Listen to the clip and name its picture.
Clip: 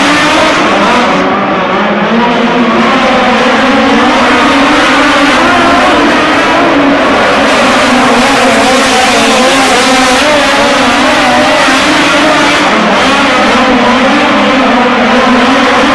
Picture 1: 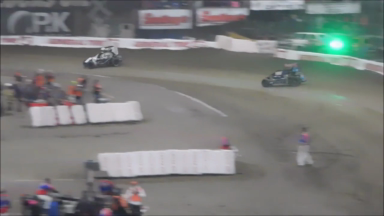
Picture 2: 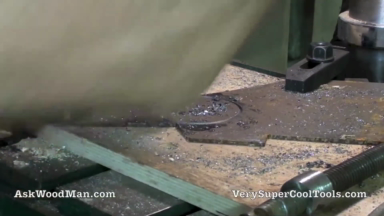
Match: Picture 1